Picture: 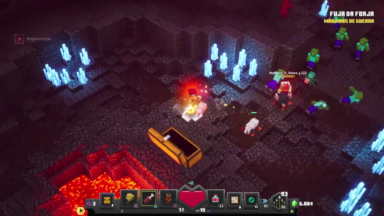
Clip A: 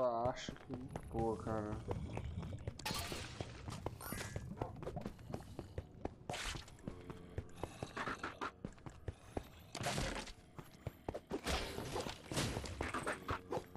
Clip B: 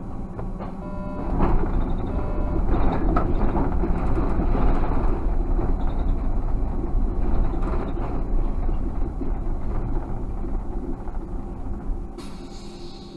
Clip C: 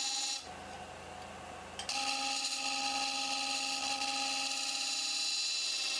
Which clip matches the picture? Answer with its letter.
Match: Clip A